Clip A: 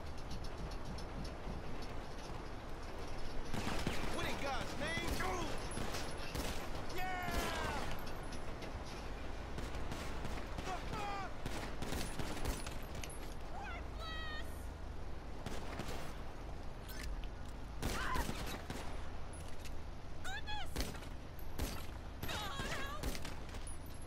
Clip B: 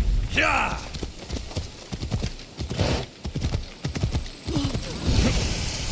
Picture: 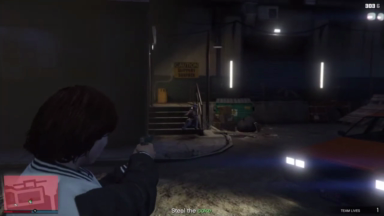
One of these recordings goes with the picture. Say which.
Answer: A